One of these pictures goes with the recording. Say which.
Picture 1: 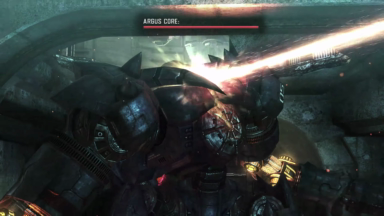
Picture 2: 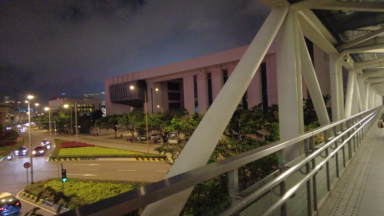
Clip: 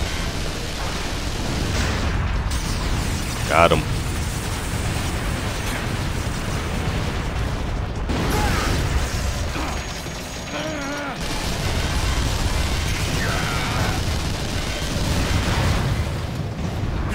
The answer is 1